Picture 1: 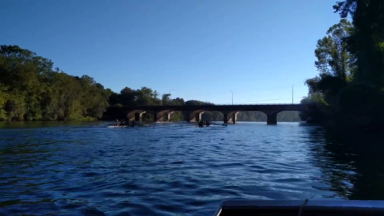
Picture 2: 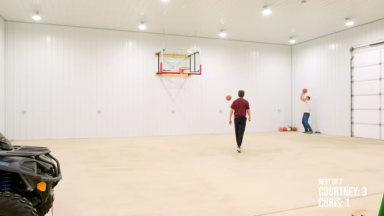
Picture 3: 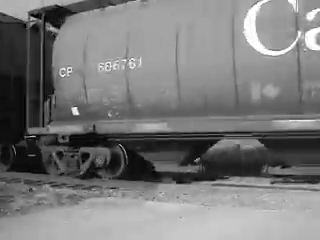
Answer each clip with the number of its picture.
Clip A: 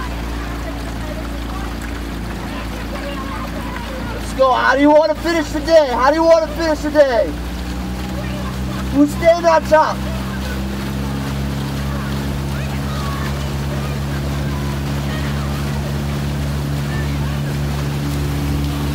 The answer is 1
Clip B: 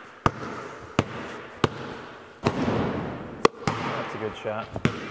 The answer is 2